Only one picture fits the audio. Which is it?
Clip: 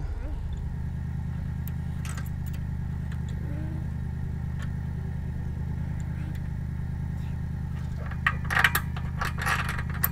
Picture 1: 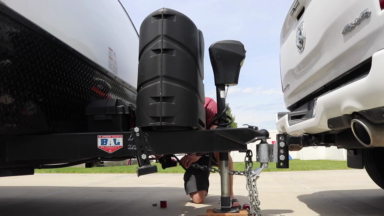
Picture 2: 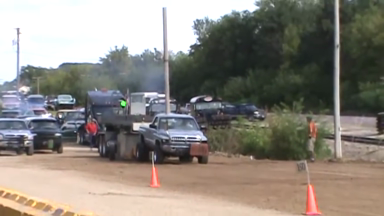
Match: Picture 1